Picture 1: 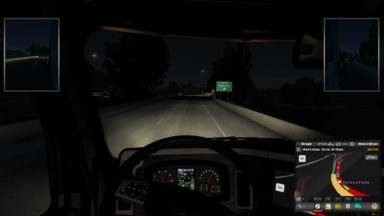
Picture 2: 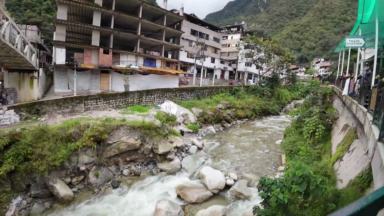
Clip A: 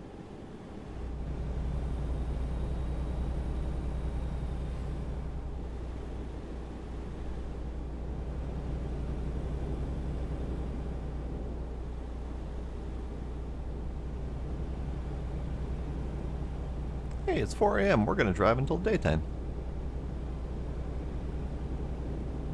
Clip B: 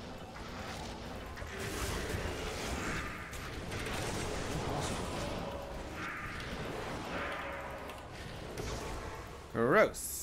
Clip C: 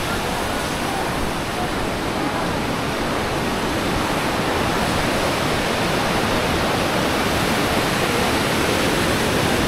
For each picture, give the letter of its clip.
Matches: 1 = A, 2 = C